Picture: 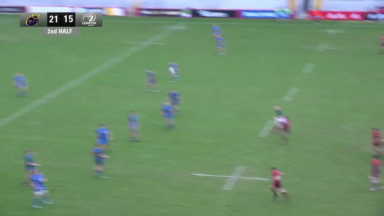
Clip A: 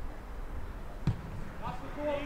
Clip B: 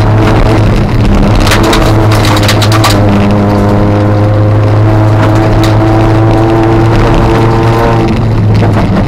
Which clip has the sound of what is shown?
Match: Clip A